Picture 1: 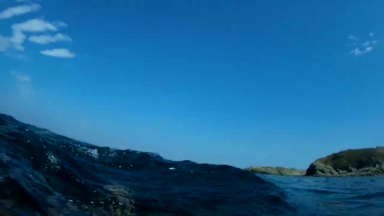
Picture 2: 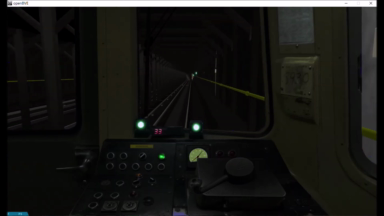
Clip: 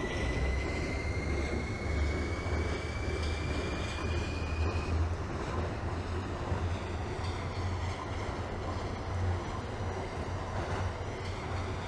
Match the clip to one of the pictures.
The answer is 2